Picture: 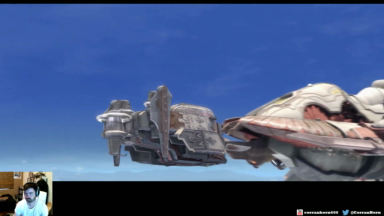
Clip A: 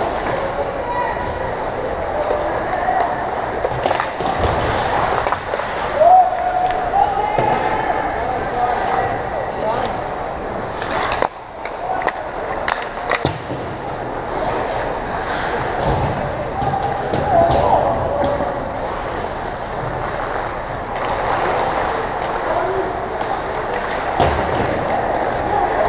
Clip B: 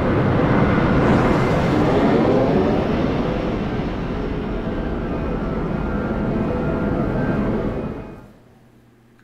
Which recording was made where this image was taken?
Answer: B